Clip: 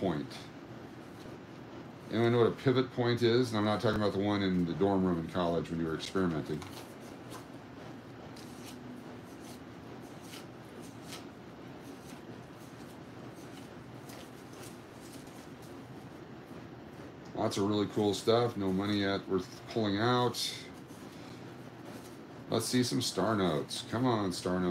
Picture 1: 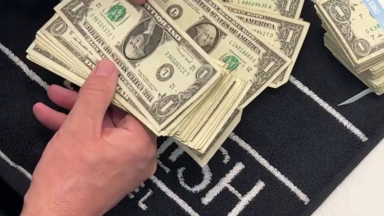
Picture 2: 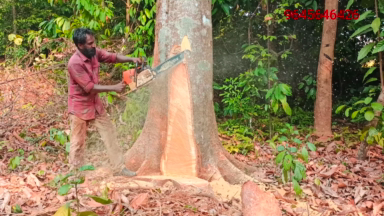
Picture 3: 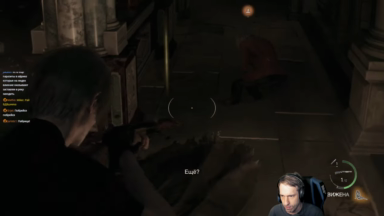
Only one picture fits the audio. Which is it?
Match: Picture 1